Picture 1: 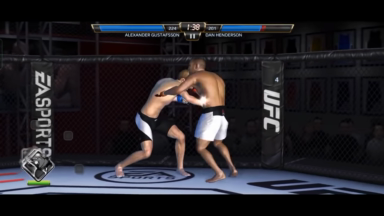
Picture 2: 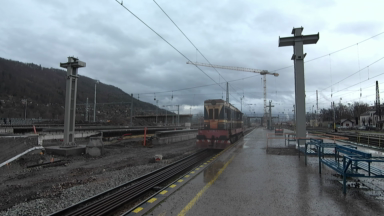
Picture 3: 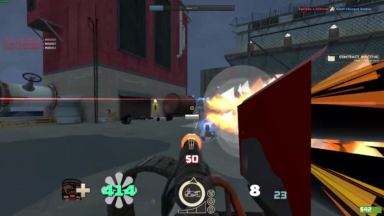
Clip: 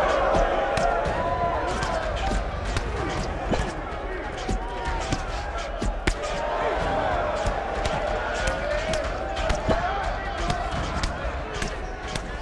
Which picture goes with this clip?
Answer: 1